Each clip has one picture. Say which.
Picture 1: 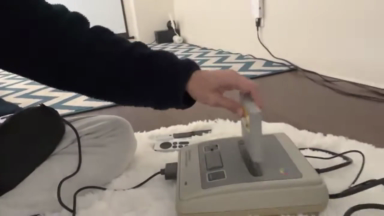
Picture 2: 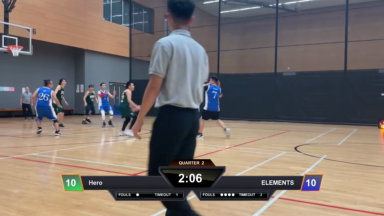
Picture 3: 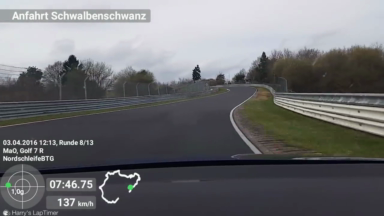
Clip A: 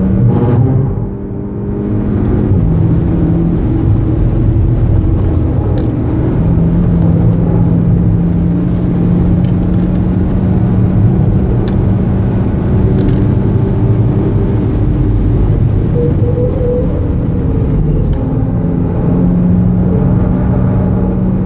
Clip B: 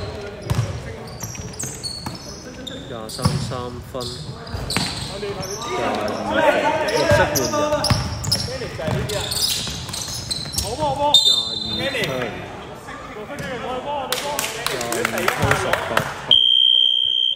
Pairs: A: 3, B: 2